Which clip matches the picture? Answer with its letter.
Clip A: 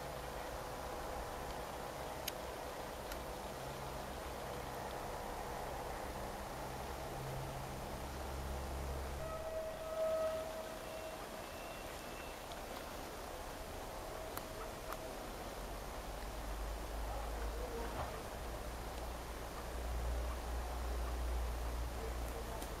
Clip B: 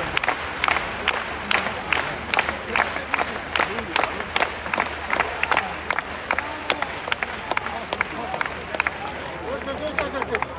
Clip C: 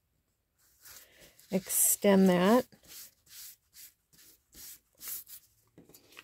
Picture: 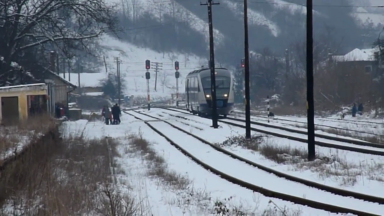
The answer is A